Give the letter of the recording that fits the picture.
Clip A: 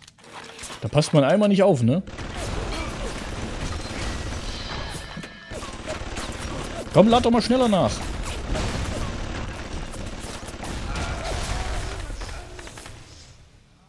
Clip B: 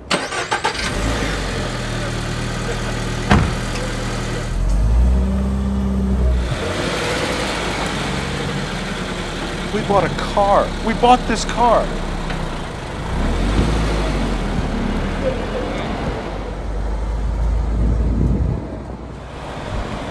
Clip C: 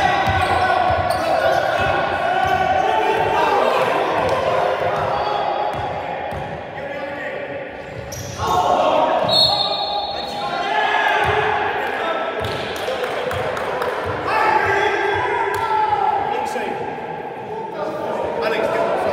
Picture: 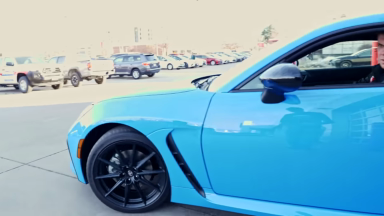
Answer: B